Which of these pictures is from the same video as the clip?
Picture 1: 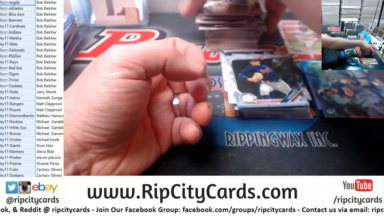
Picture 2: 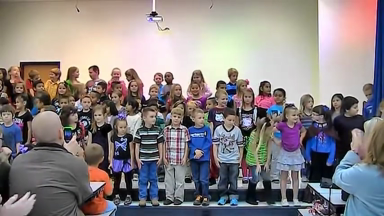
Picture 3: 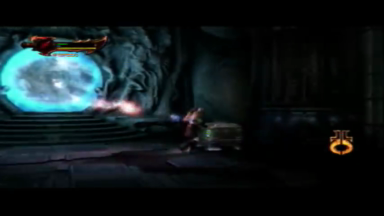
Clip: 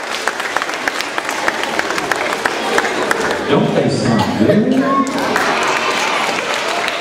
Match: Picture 2